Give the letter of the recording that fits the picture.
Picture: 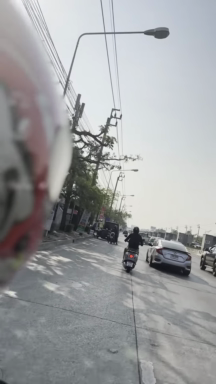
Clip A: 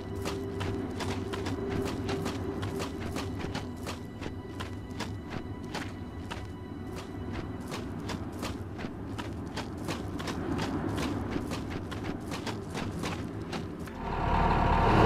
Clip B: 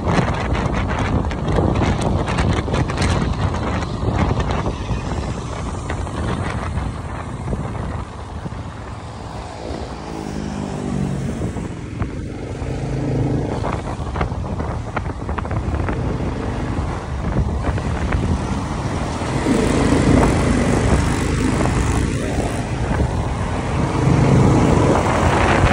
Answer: B